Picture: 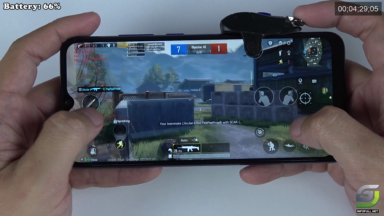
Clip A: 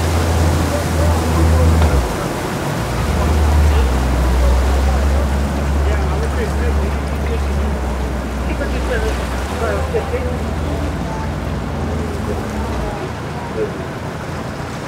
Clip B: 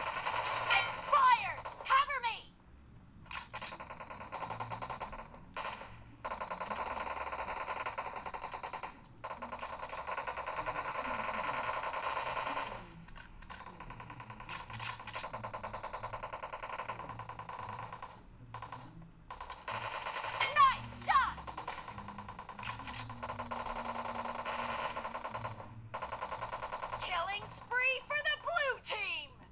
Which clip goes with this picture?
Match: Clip B